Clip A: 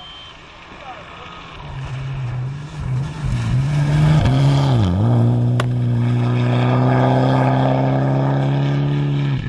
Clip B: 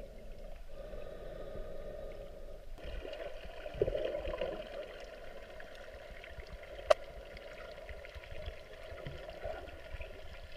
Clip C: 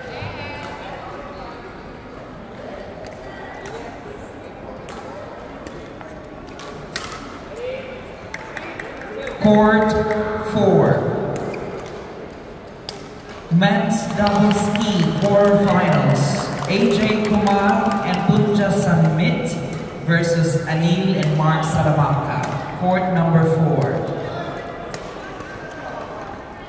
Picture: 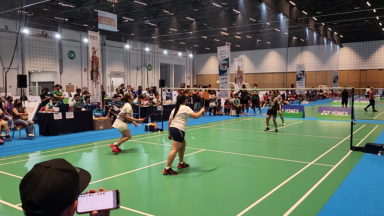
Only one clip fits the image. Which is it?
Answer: C